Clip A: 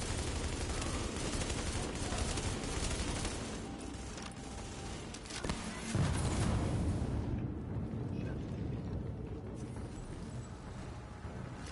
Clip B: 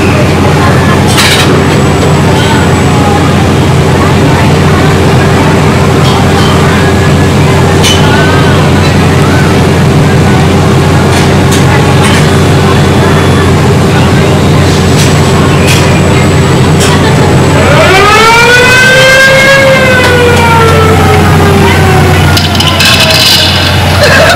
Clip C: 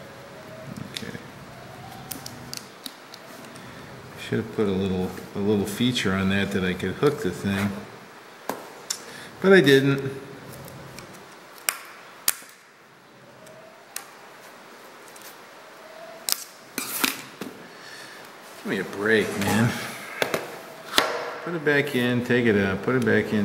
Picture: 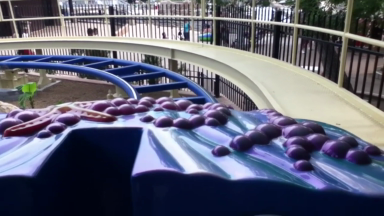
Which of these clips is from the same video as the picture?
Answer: B